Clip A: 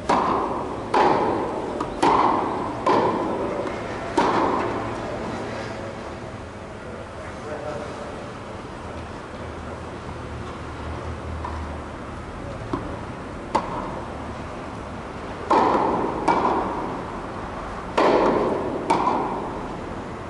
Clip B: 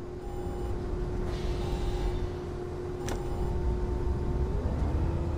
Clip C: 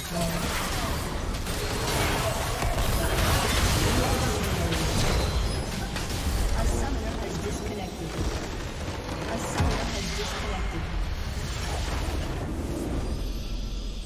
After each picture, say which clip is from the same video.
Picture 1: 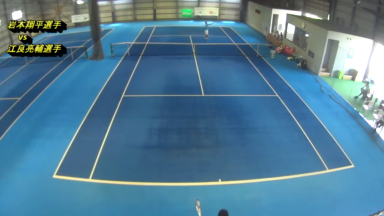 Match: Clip A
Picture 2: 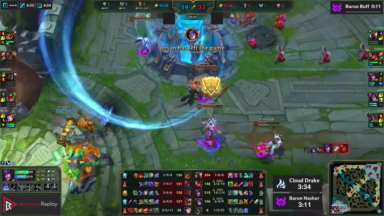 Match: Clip C